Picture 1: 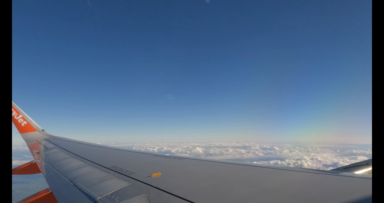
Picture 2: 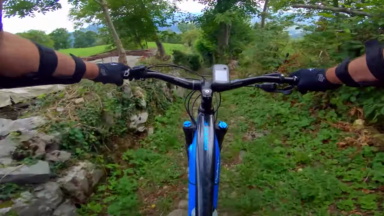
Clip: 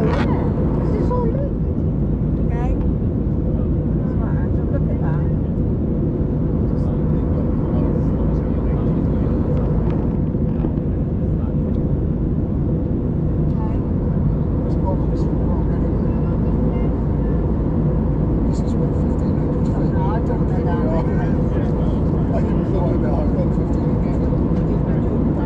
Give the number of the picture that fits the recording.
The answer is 1